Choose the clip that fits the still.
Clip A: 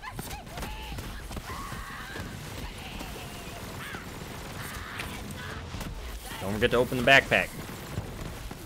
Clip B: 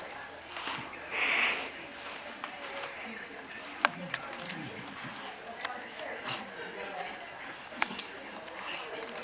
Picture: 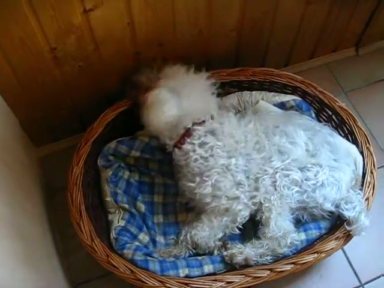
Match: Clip B